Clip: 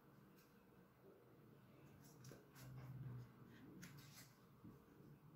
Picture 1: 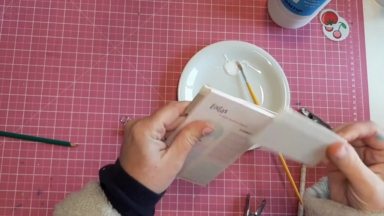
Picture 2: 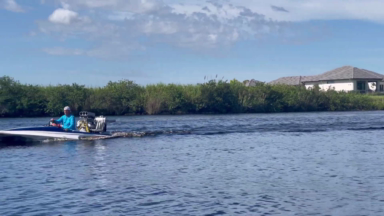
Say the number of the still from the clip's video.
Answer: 1